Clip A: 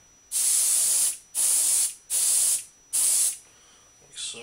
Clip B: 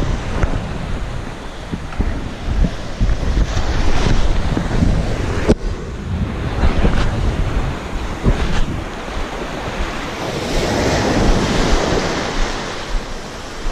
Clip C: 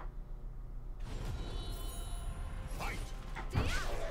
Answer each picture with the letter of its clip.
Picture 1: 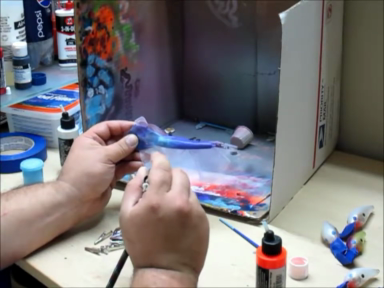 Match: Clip A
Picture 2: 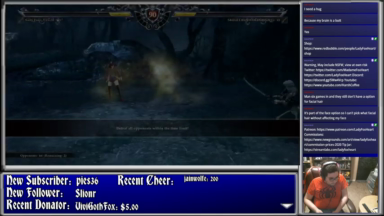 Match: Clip C